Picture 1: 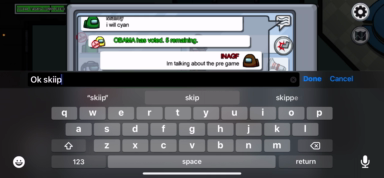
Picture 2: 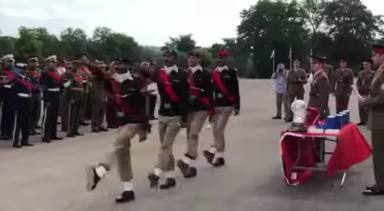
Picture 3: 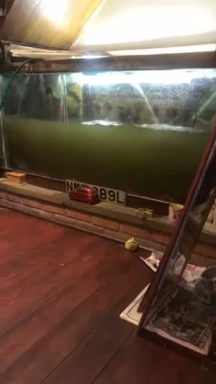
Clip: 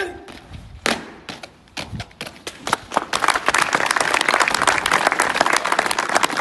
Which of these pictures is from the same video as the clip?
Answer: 2